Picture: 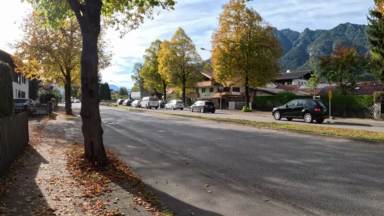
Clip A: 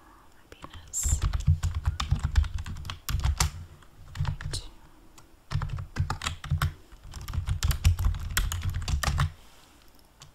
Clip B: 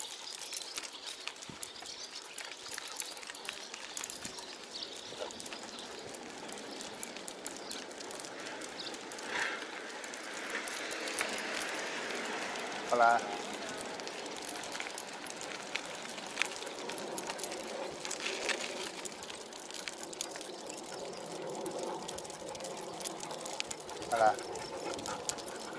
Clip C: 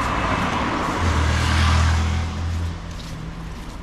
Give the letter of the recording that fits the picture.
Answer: C